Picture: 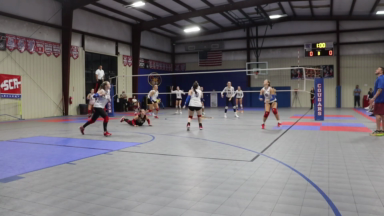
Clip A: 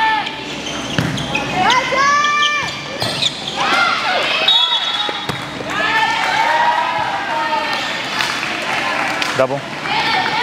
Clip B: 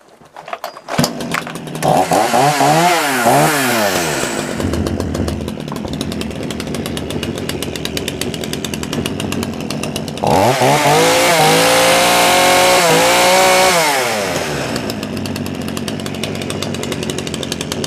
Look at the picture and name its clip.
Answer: A